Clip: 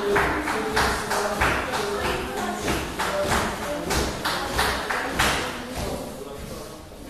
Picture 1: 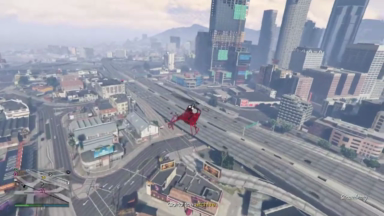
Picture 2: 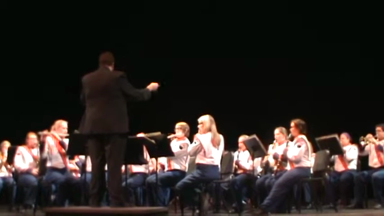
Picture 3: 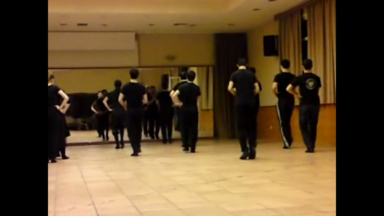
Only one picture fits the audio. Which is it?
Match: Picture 3